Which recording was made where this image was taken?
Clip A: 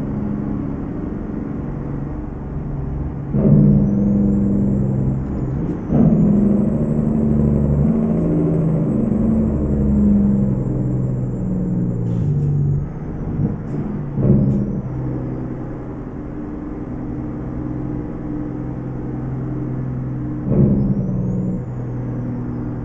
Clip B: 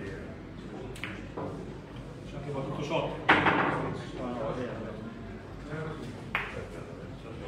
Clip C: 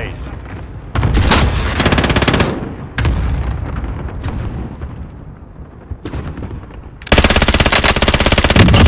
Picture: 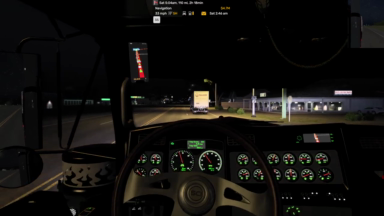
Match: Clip A